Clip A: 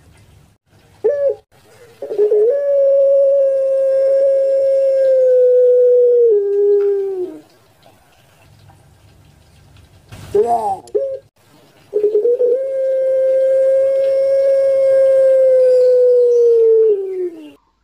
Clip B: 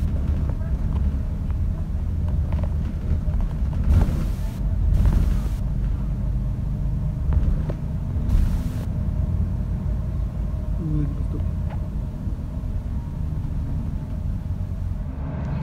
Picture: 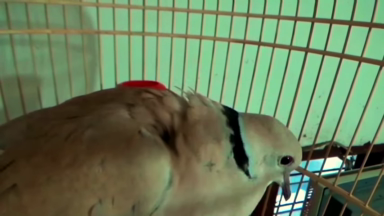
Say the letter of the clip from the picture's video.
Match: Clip A